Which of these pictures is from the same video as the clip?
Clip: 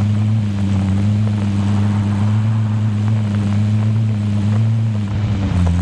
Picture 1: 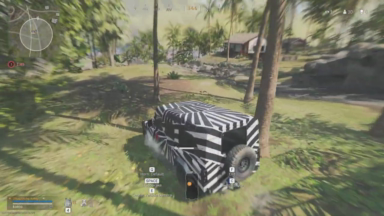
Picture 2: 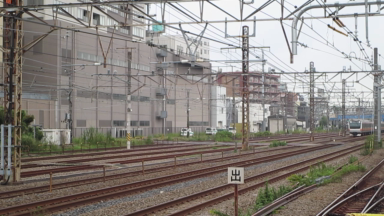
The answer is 1